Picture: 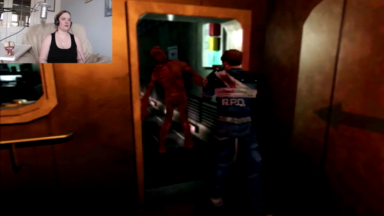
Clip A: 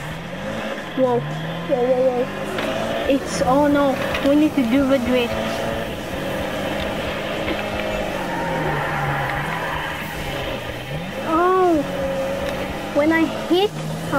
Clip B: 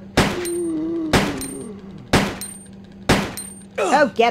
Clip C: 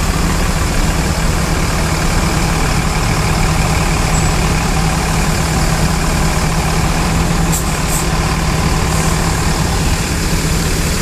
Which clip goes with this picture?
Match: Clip B